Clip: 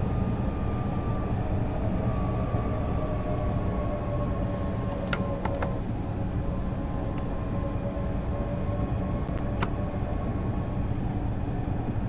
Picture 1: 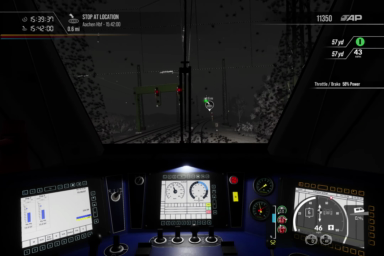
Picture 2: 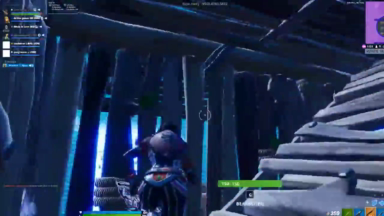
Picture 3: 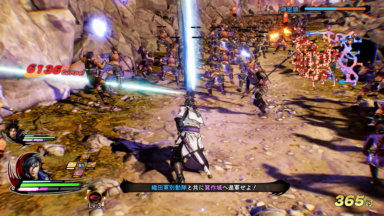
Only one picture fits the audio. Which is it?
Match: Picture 1